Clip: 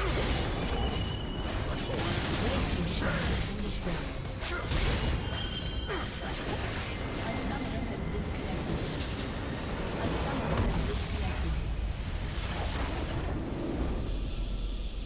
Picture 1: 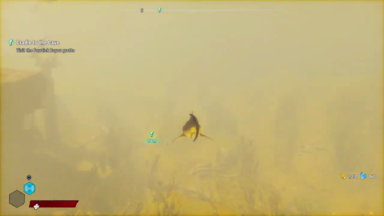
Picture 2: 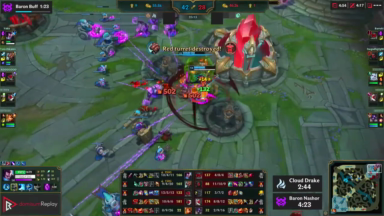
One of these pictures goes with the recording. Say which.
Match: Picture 2